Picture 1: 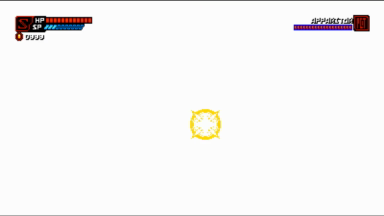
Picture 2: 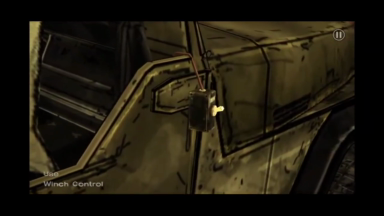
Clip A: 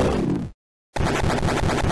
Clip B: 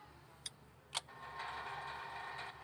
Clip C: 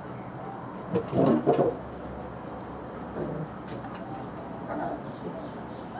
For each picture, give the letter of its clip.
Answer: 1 A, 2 B